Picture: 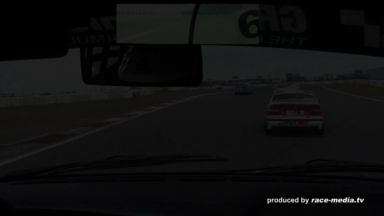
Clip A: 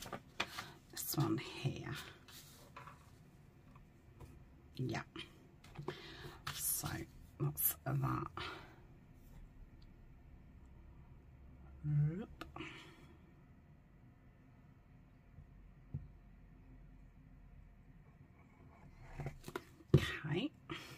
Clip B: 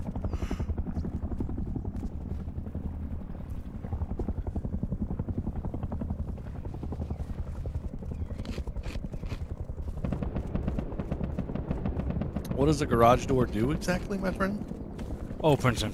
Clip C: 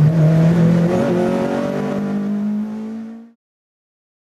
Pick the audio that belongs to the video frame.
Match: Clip C